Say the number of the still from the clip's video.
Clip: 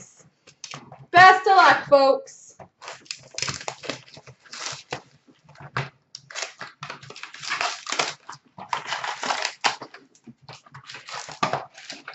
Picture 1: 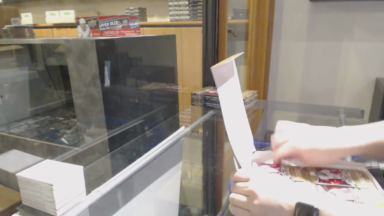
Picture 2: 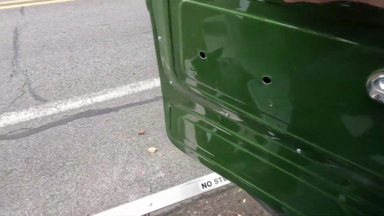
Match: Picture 1